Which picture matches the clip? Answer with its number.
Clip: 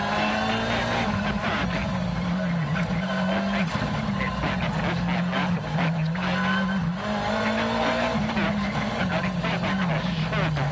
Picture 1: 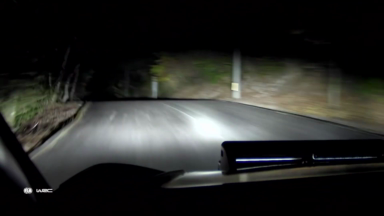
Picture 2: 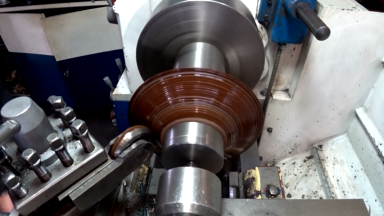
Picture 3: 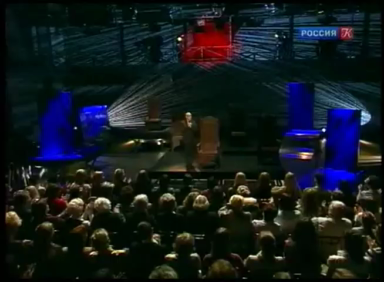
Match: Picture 1